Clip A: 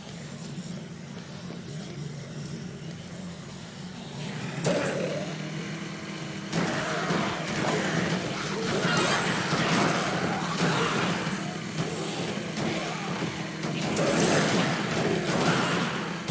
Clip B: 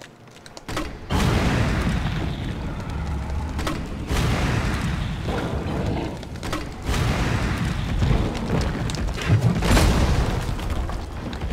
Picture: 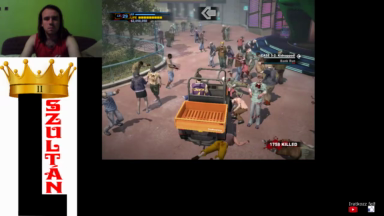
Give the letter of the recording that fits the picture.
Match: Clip A